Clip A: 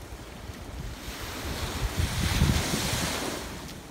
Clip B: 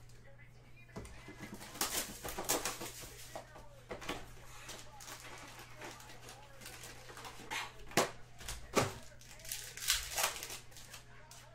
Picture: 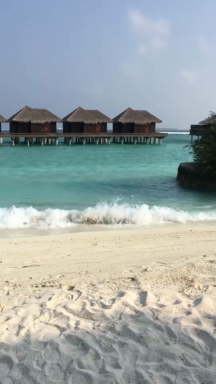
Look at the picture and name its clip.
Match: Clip A